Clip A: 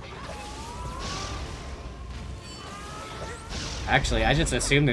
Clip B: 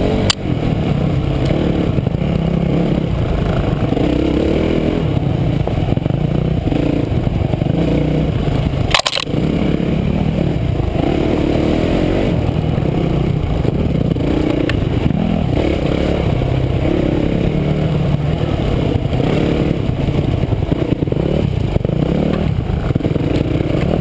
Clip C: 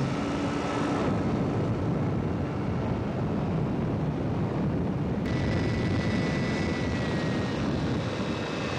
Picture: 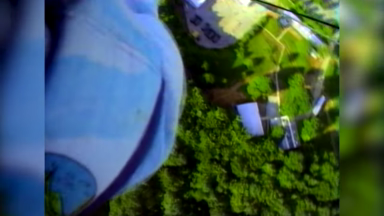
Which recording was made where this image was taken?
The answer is C